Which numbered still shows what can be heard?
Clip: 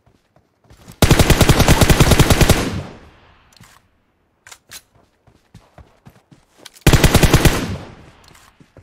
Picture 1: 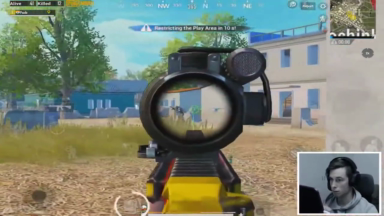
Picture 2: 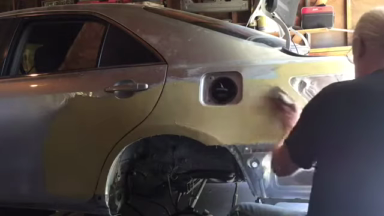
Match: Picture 1